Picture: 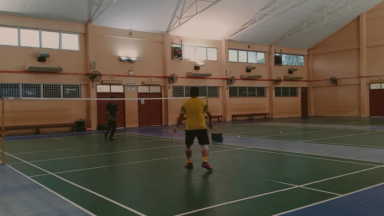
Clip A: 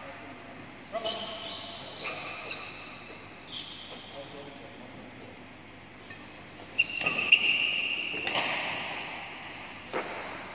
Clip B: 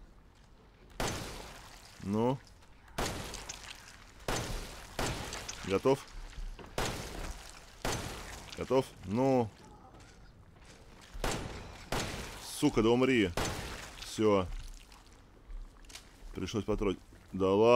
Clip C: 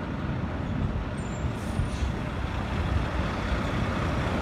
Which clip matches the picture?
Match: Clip A